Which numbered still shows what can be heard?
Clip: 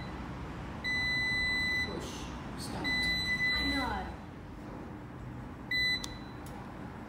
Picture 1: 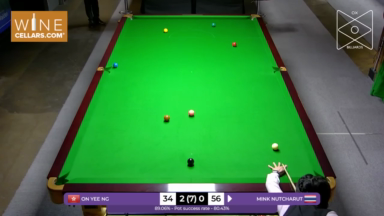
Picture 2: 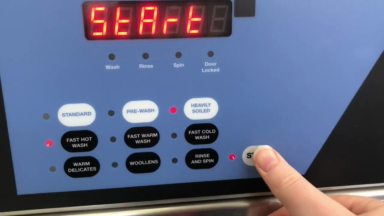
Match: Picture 2